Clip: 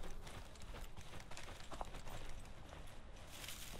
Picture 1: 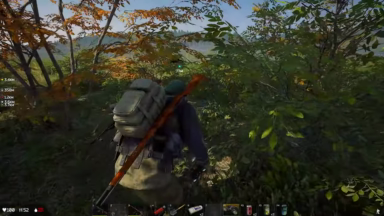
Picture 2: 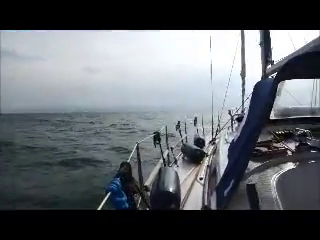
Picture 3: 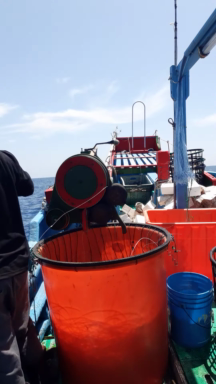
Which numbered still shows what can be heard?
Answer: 1